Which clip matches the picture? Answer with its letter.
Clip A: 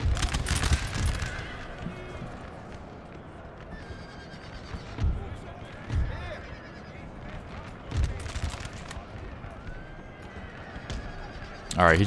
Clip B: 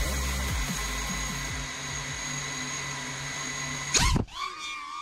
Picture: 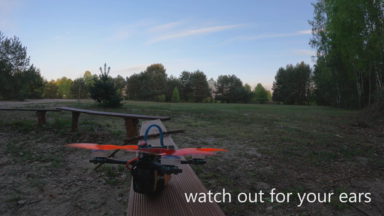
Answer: B